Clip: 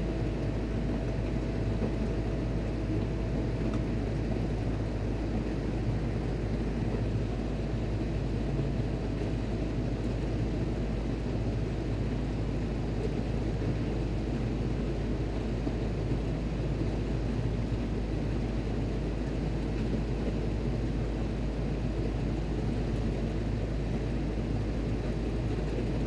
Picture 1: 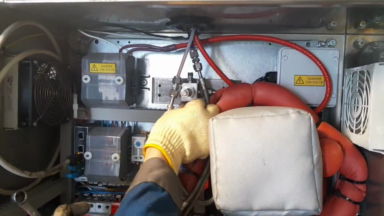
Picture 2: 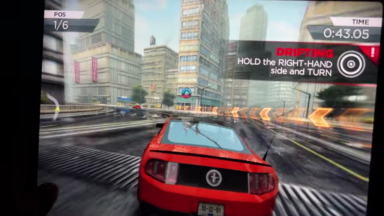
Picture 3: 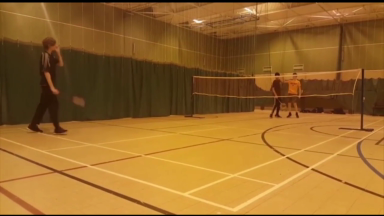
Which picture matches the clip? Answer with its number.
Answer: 1